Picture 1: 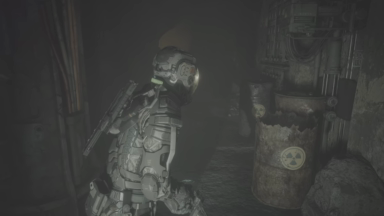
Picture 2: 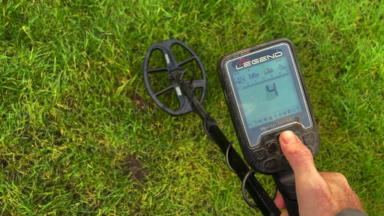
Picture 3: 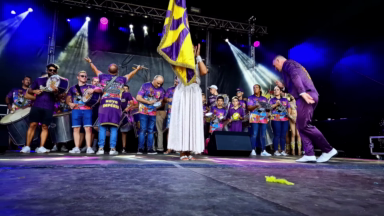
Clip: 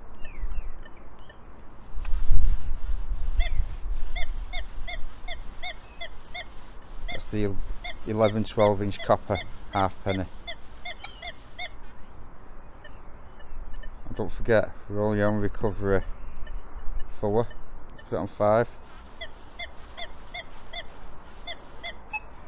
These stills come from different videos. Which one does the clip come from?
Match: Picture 2